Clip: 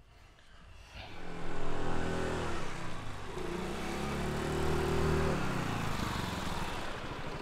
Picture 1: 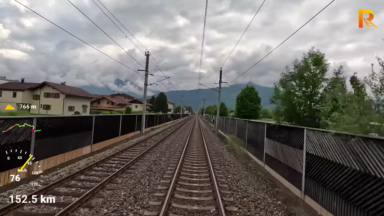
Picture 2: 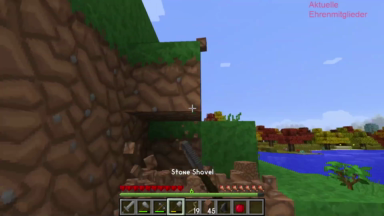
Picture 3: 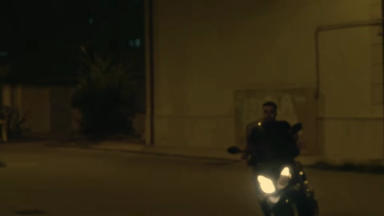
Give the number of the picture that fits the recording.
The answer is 3